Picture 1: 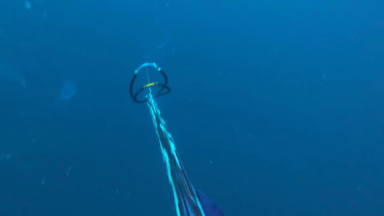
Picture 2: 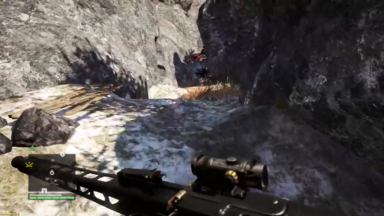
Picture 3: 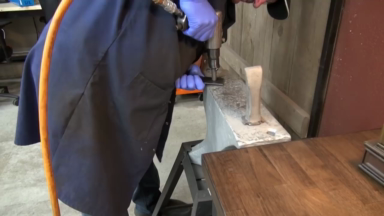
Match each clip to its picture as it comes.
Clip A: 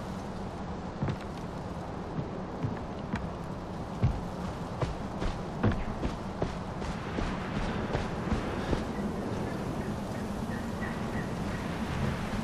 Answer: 2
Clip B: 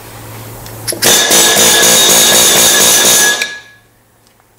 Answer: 3